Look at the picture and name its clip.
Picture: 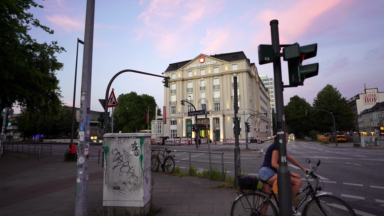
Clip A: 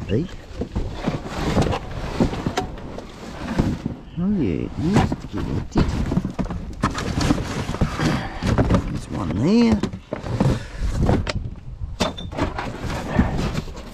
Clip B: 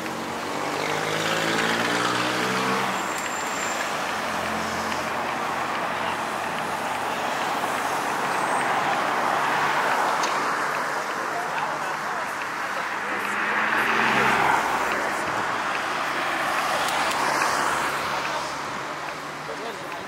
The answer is B